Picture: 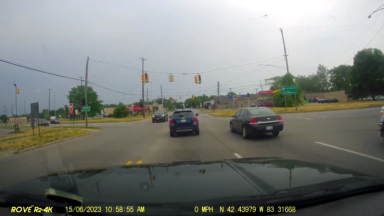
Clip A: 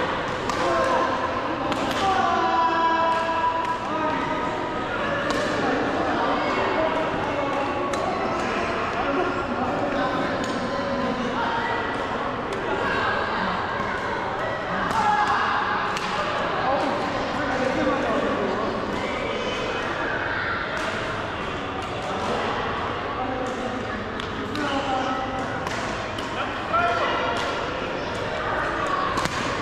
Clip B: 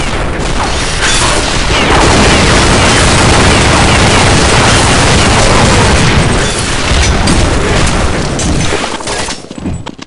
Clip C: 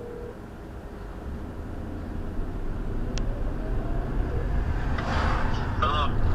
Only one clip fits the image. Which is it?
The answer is C